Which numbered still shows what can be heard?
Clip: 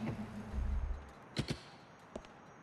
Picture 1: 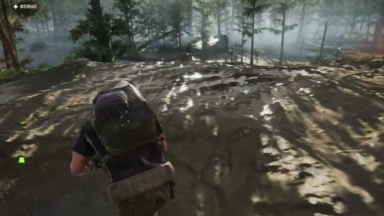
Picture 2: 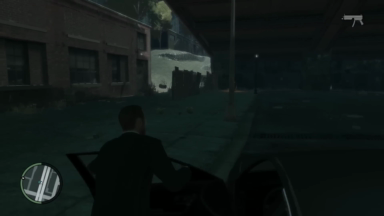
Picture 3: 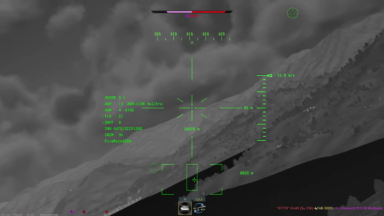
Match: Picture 2